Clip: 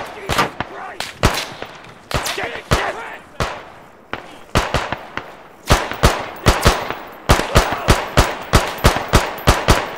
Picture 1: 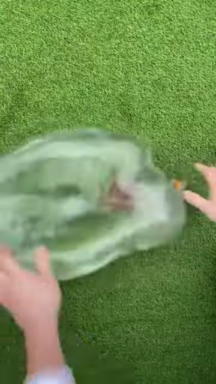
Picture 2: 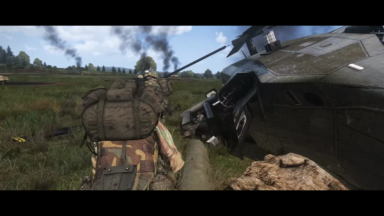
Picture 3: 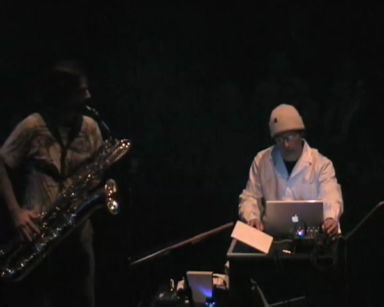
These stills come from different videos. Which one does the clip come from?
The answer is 2